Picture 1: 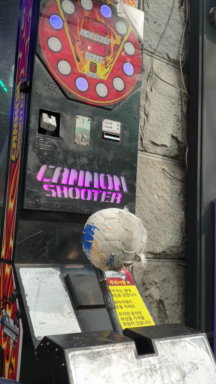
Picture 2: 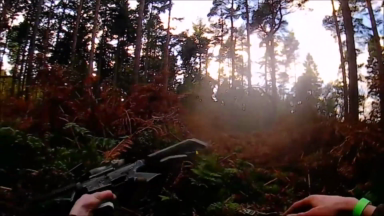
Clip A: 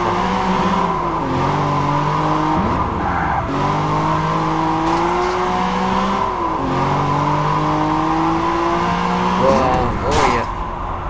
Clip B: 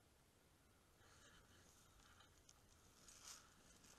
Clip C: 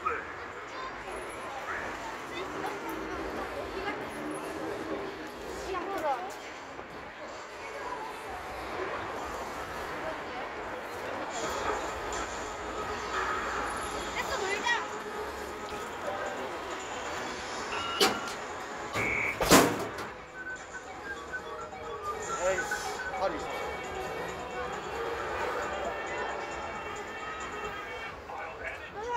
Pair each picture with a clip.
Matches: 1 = C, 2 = B